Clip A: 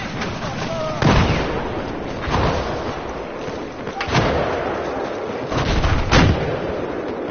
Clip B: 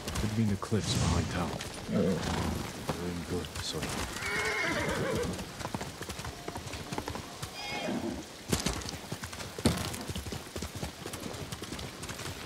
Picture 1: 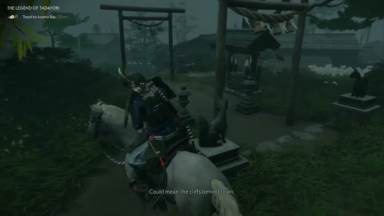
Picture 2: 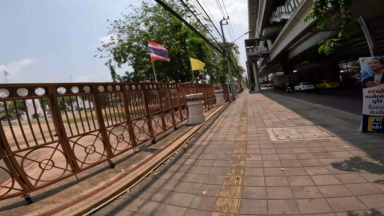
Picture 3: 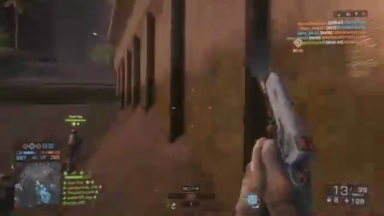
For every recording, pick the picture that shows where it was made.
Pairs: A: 3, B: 1